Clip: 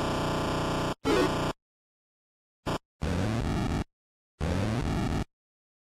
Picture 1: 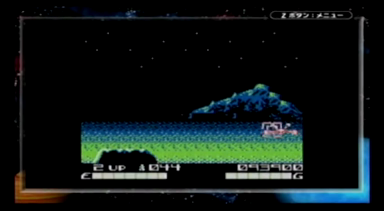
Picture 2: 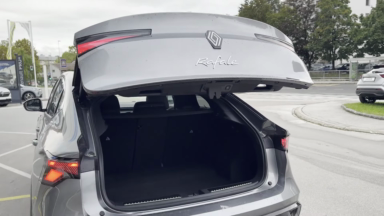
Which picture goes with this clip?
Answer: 1